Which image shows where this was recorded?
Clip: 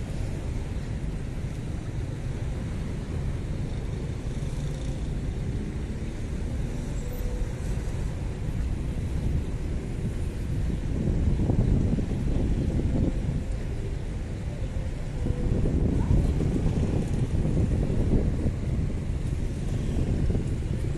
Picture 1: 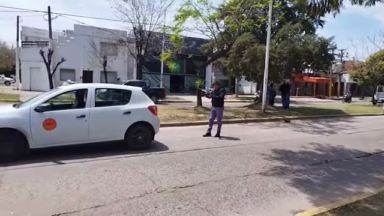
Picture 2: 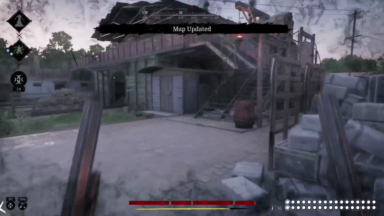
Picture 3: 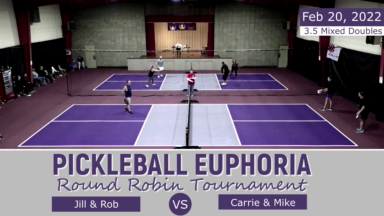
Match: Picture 1